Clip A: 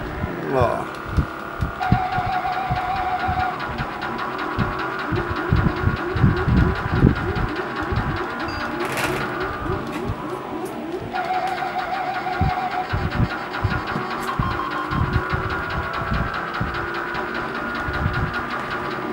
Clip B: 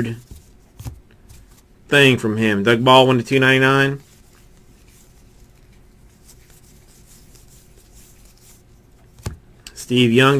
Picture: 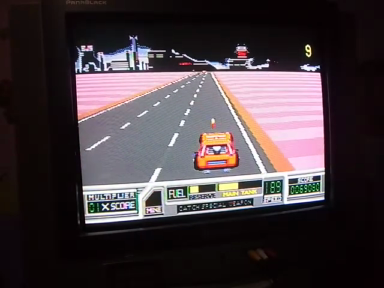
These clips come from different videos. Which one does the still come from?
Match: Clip A